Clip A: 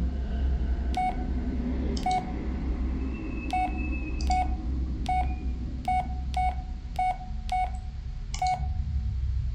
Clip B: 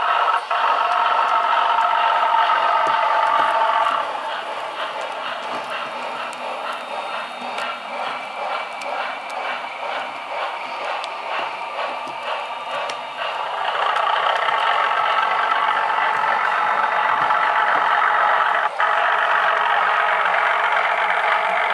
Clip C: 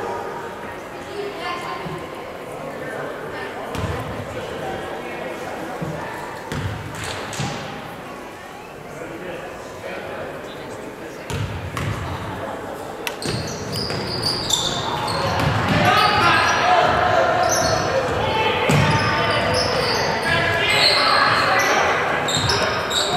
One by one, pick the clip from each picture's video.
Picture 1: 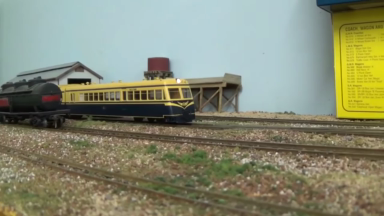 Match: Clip B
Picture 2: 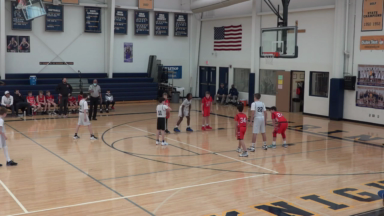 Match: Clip C